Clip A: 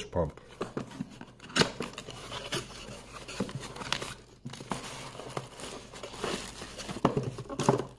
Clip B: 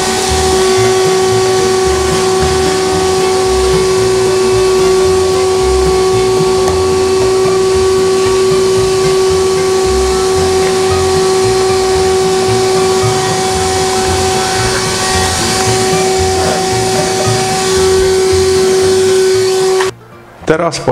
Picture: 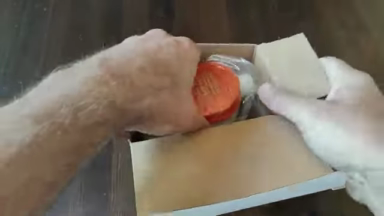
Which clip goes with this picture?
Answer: A